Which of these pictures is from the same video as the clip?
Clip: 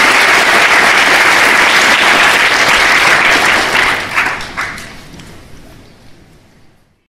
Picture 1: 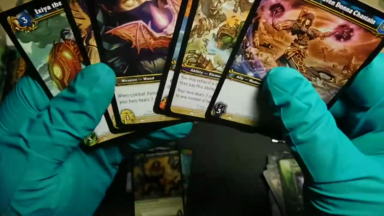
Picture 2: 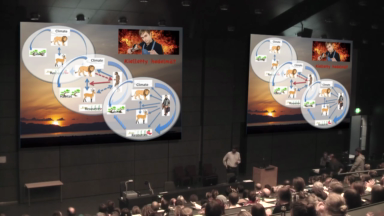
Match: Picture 2